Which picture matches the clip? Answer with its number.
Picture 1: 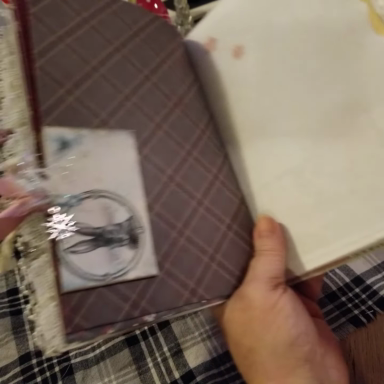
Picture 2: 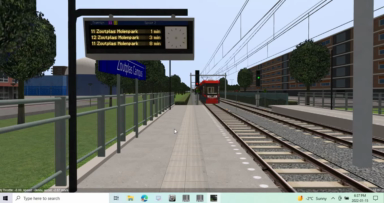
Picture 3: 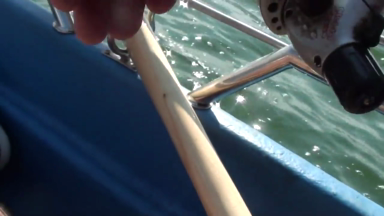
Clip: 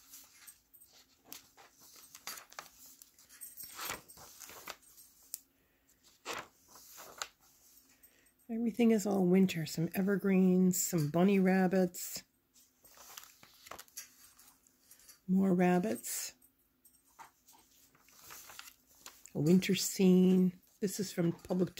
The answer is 1